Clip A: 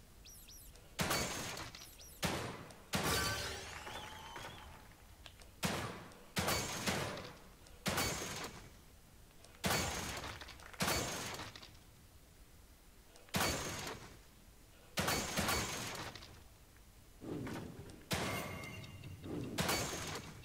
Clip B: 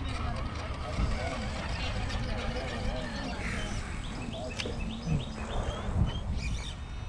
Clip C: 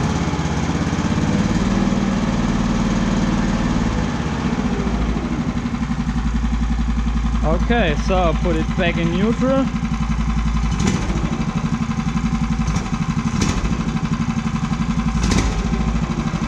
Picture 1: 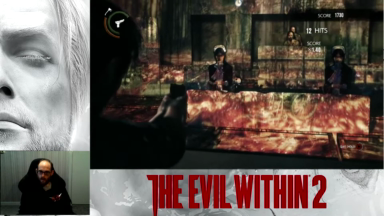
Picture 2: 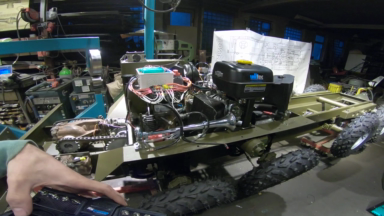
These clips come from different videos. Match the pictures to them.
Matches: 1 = A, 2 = C